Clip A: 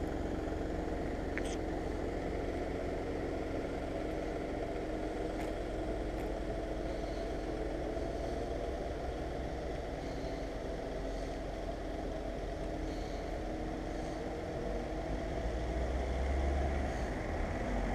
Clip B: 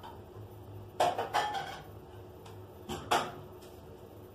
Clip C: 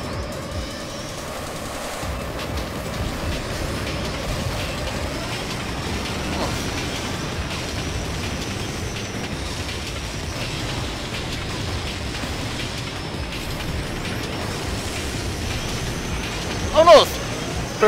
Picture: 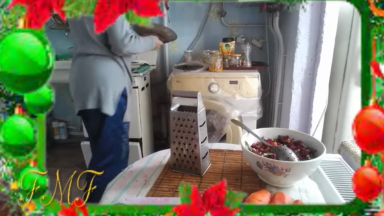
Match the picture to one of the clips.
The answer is B